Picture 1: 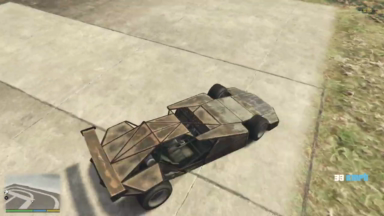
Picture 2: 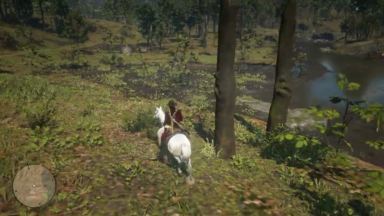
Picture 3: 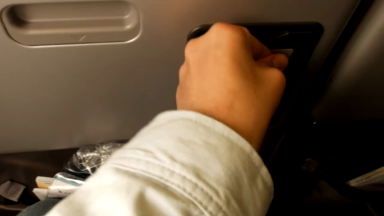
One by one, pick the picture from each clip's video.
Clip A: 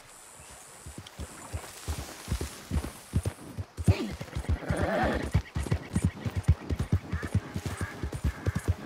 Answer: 2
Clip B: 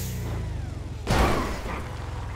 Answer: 1